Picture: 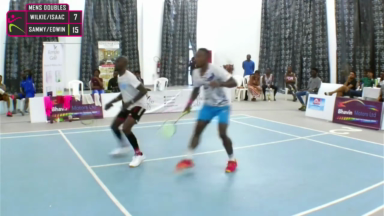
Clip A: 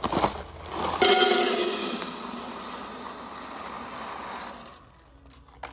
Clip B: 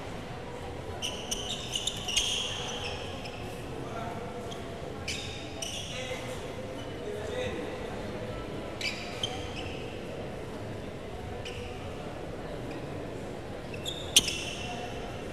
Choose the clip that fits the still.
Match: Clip B